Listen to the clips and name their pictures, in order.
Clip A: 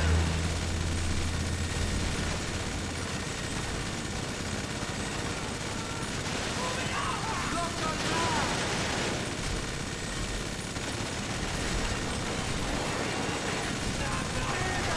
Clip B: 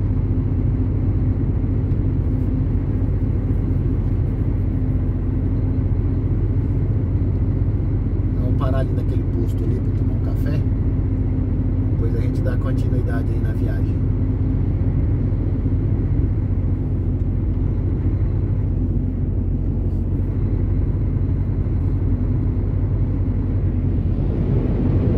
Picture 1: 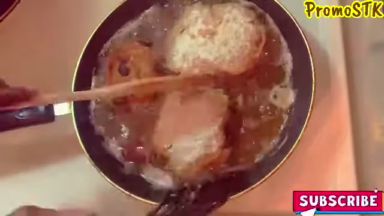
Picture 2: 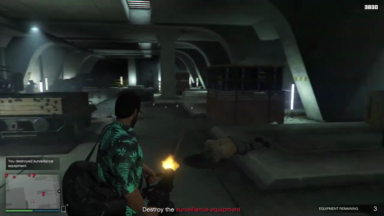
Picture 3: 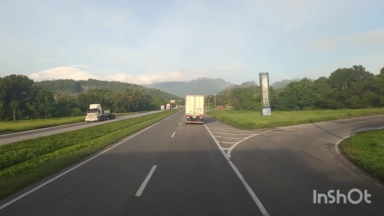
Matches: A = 2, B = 3